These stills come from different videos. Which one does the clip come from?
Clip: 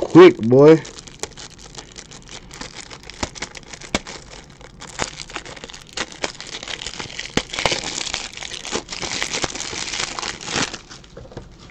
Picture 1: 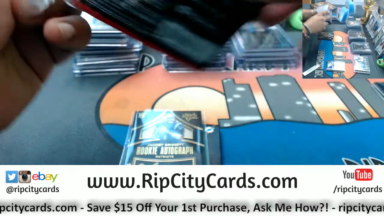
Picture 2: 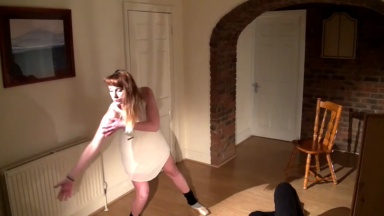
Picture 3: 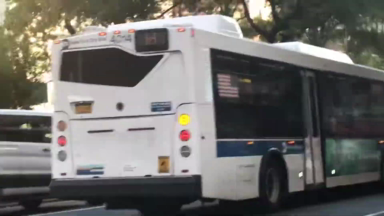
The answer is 1